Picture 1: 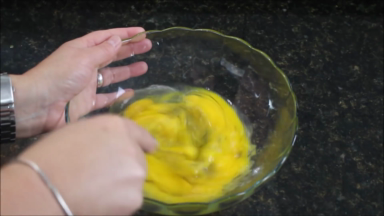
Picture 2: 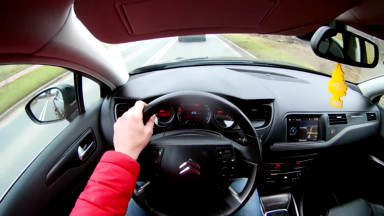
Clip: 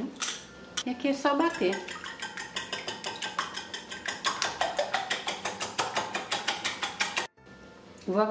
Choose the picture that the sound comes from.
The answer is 1